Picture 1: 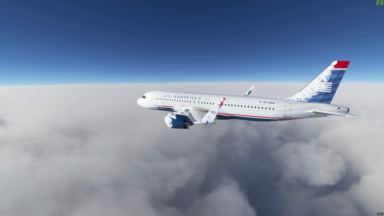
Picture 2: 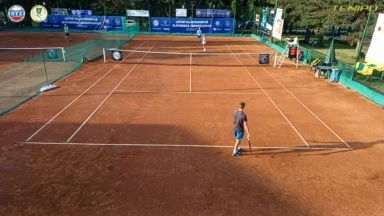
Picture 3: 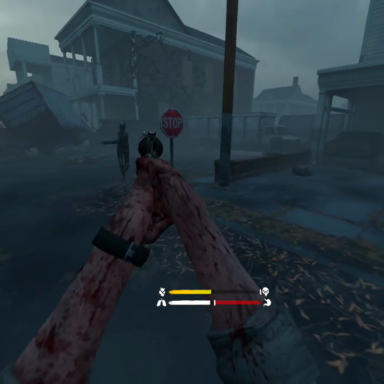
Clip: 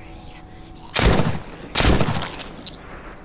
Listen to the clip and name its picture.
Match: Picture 3